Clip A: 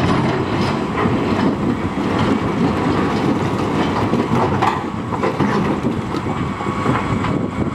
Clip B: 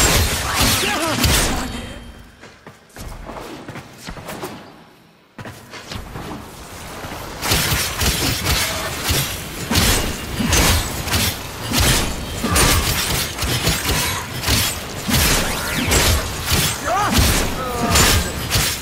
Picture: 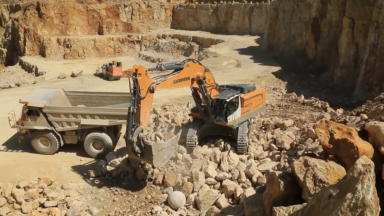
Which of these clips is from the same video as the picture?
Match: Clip A